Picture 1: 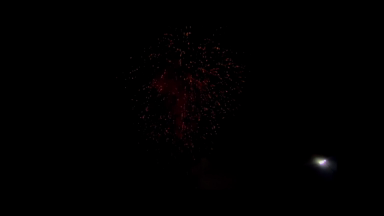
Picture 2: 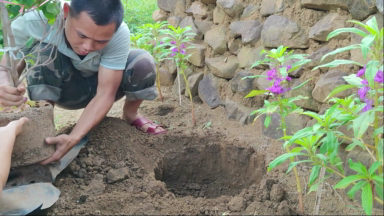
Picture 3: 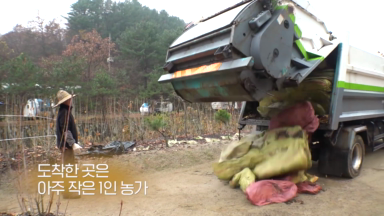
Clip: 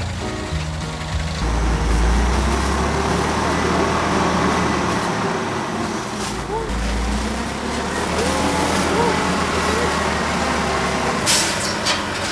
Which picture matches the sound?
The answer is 3